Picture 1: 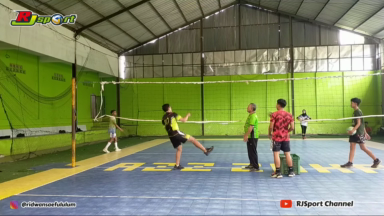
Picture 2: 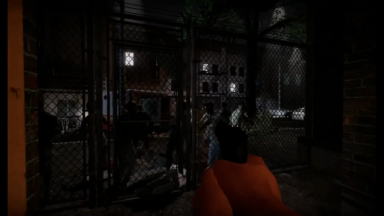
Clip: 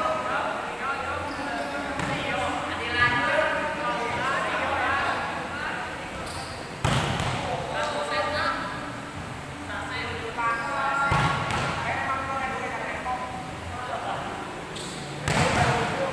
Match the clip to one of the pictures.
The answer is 1